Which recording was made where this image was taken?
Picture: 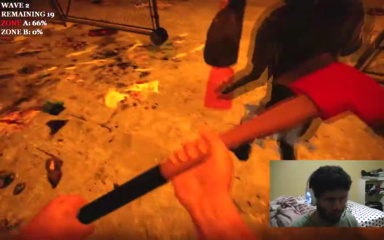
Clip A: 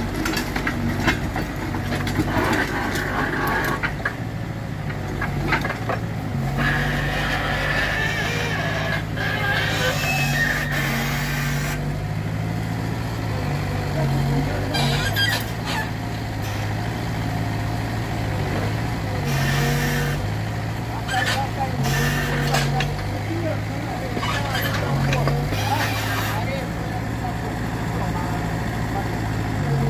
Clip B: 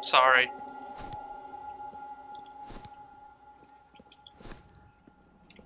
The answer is B